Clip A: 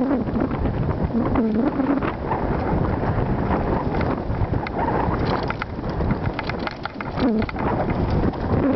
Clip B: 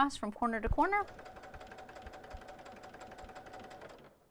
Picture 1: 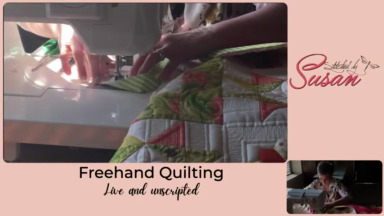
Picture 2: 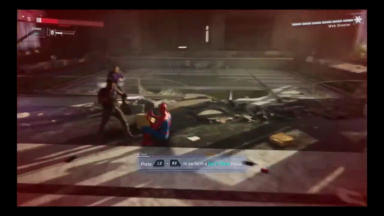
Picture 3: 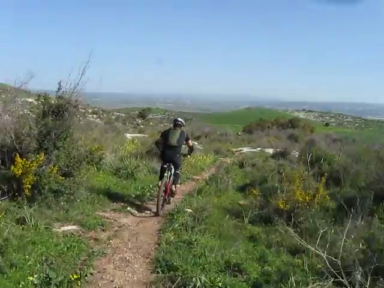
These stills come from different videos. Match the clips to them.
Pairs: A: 3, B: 1